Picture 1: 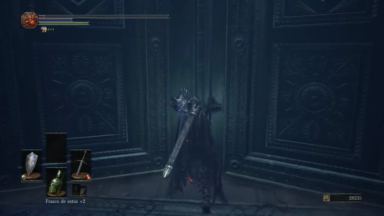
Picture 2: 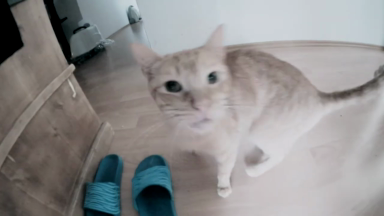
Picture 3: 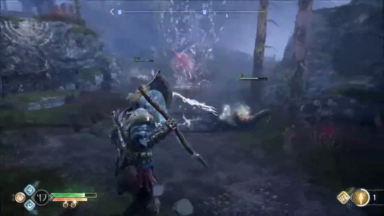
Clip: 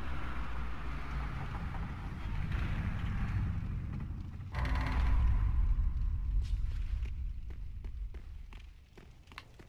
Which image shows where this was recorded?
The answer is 1